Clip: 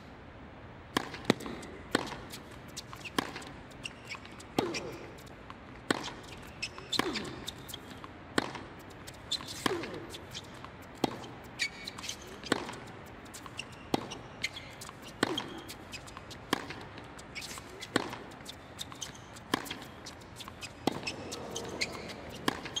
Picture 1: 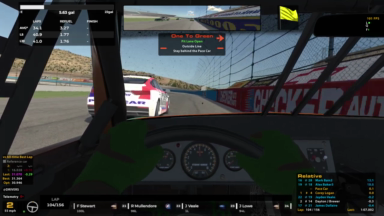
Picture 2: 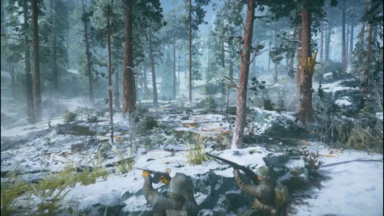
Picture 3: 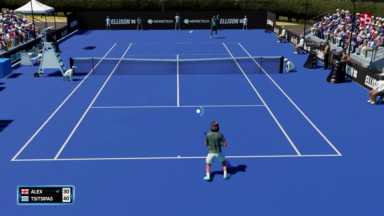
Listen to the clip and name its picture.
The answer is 3